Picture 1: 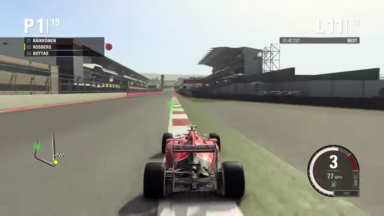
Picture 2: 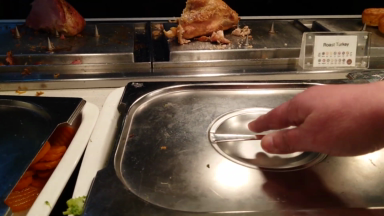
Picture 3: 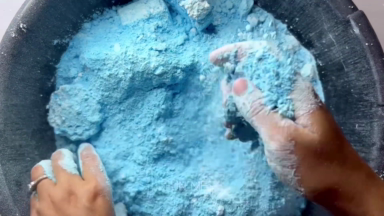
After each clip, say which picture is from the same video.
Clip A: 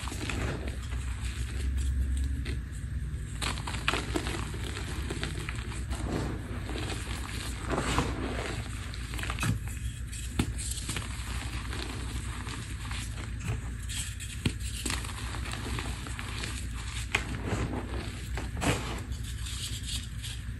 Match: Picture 3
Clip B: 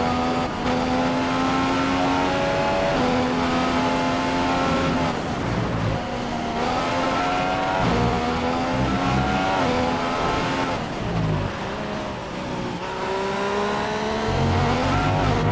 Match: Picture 1